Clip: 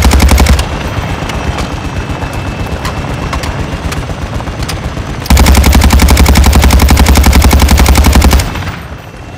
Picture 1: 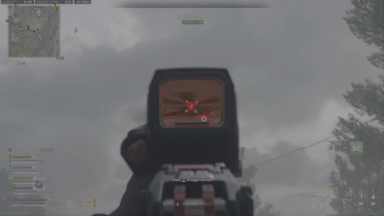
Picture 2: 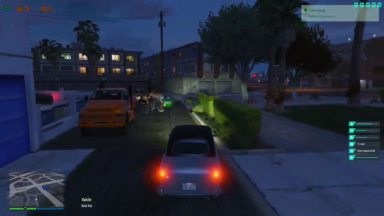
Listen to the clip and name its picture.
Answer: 1